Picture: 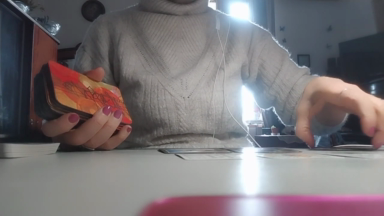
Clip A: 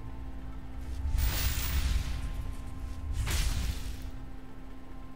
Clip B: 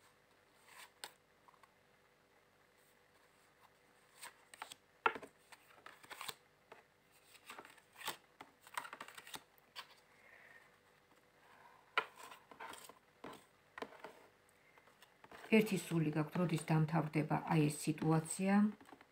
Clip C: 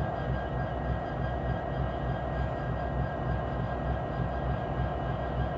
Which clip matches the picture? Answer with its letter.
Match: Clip B